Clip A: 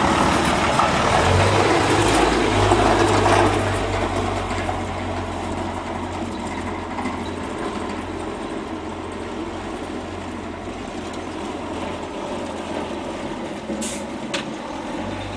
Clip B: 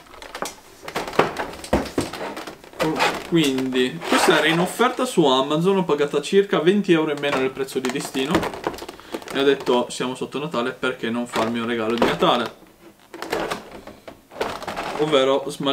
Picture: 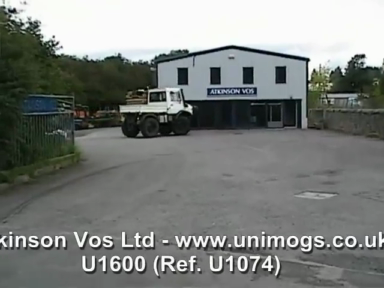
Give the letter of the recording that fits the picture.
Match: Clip A